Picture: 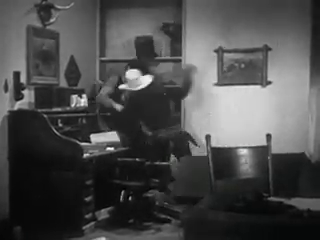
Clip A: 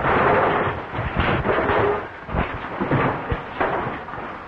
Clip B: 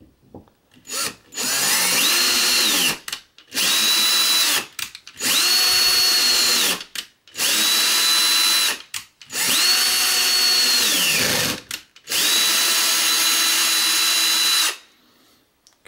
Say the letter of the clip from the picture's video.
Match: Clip A